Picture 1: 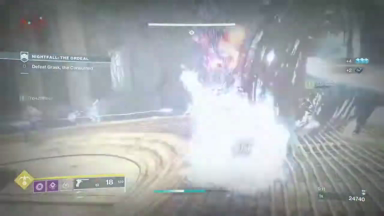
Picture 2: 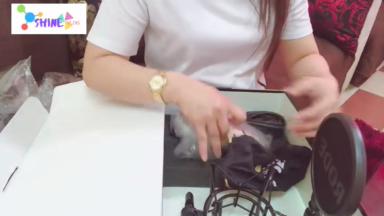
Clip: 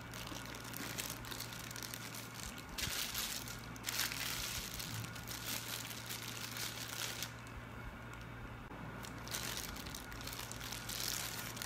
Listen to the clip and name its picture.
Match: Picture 2